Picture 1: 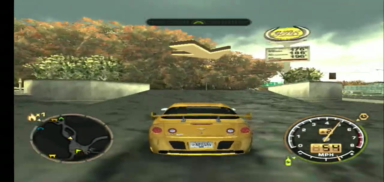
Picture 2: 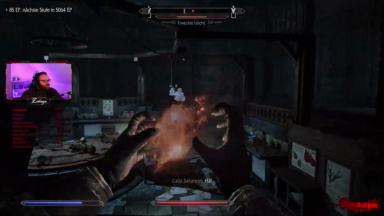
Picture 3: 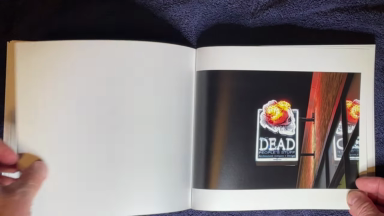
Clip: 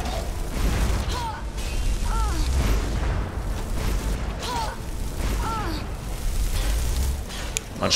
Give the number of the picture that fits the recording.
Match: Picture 2